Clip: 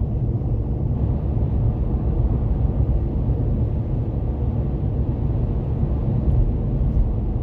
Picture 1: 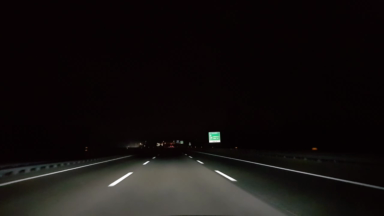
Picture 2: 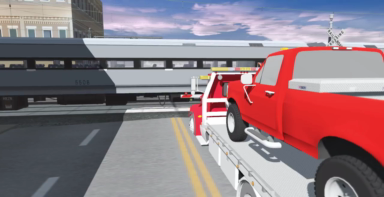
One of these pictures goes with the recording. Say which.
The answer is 1